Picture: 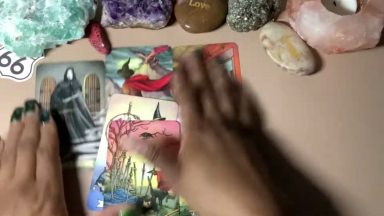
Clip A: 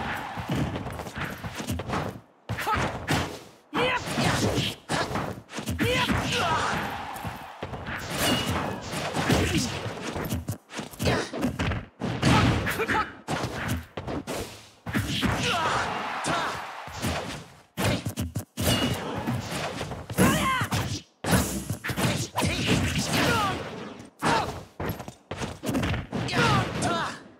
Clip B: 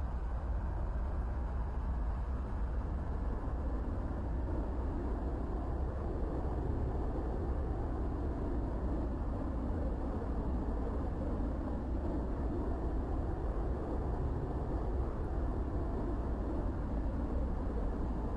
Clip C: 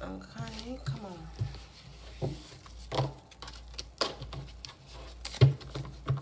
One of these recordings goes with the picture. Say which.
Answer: C